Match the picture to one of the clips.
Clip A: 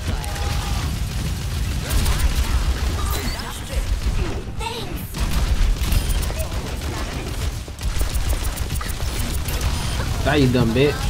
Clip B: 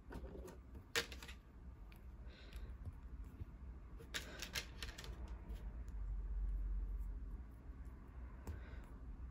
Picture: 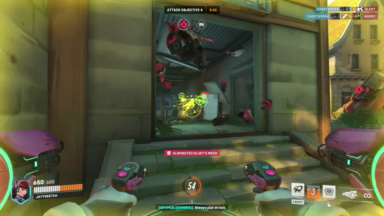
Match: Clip A